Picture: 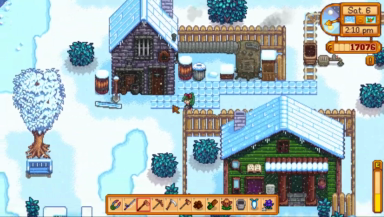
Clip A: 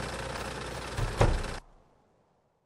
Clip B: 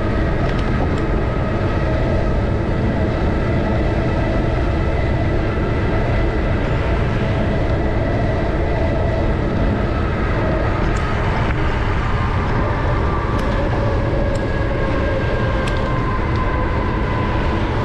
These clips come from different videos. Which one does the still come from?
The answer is A